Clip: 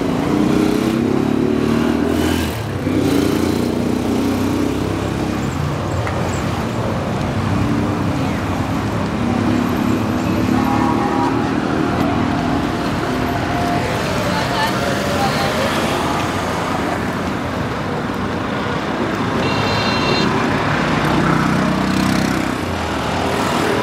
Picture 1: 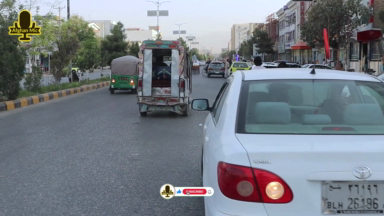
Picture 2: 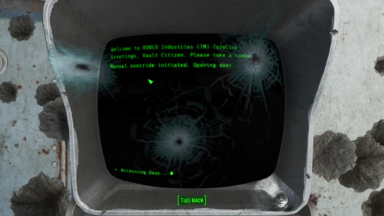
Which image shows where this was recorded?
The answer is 1